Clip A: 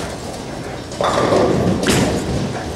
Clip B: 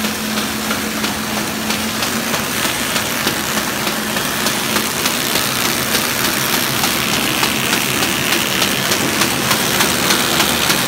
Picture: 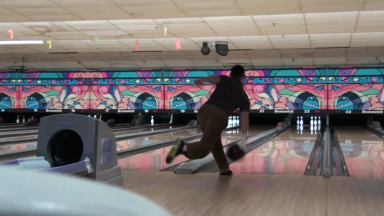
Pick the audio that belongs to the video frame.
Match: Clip A